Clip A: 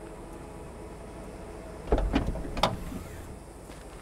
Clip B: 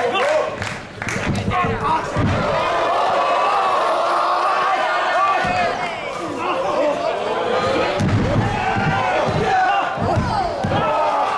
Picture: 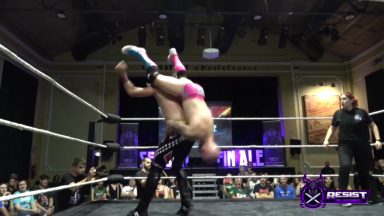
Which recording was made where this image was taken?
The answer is B